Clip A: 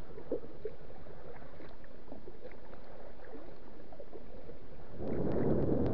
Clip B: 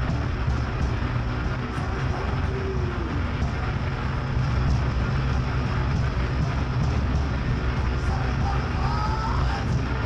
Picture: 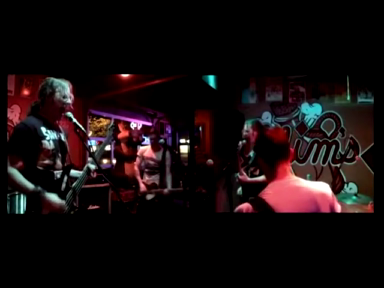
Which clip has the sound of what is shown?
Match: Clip B